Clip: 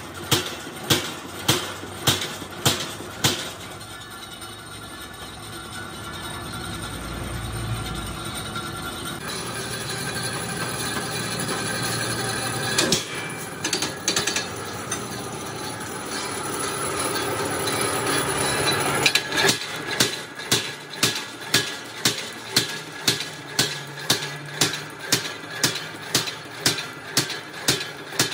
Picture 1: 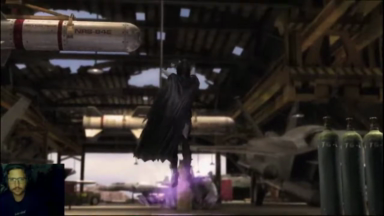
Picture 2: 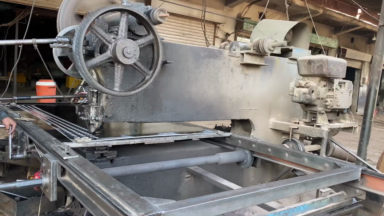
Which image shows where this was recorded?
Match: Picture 2